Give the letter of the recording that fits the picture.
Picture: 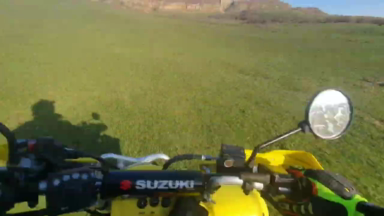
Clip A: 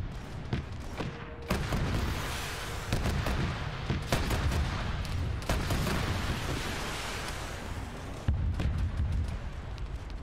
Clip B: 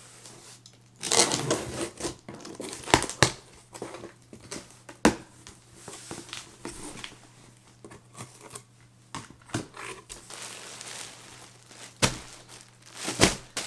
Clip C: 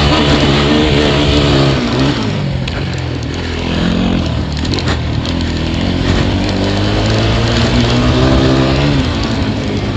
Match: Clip C